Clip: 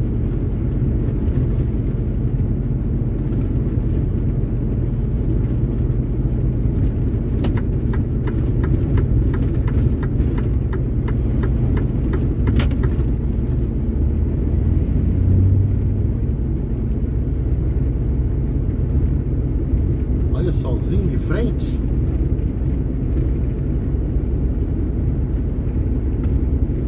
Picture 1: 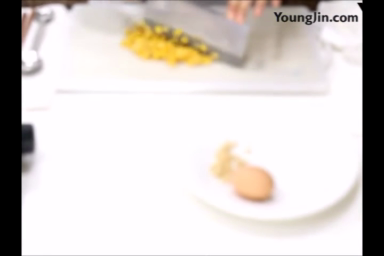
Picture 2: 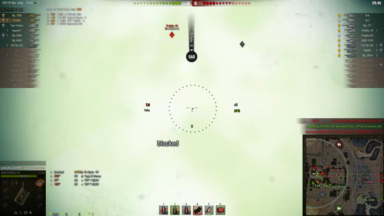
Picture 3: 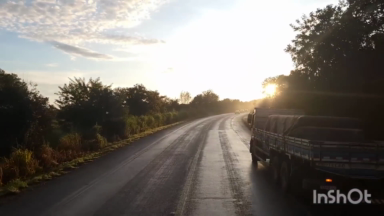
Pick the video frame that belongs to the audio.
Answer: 3